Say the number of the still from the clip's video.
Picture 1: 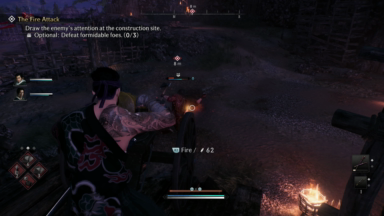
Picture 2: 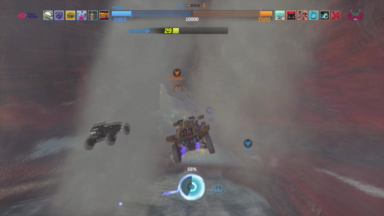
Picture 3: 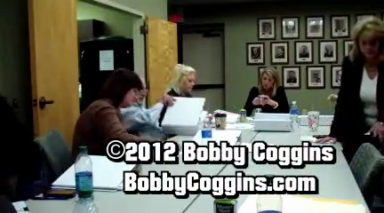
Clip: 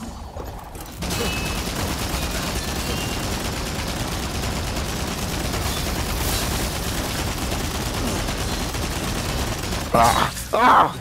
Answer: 1